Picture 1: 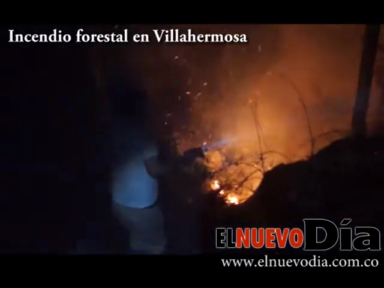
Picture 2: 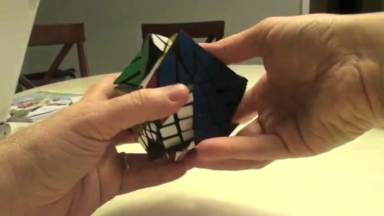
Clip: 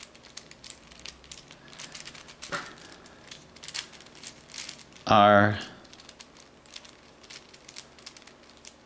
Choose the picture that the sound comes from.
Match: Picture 2